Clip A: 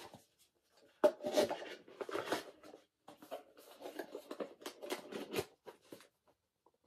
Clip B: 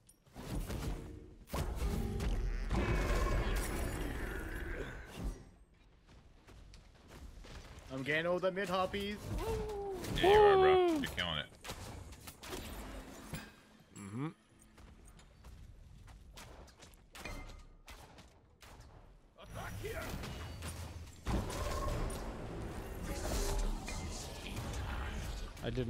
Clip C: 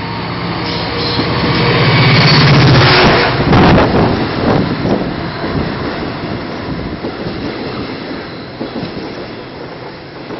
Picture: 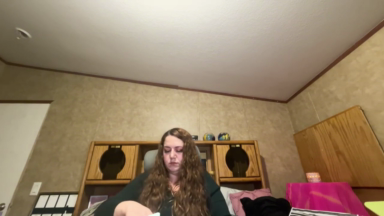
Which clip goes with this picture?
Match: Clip A